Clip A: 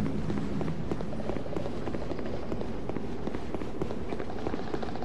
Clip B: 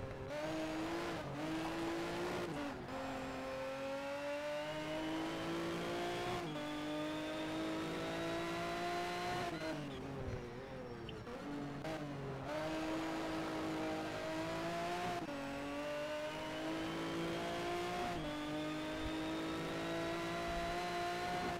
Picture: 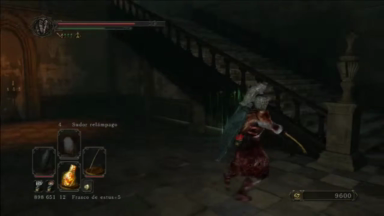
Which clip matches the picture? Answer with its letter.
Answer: A